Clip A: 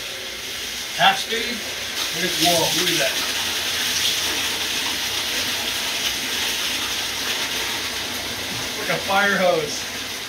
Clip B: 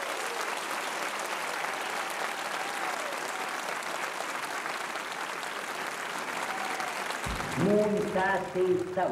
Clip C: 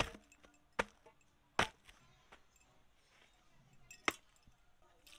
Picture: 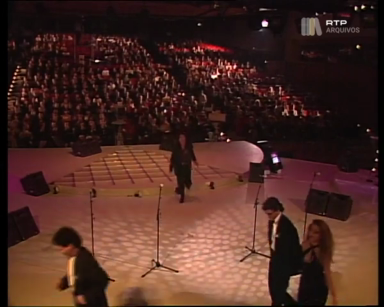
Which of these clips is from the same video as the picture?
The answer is B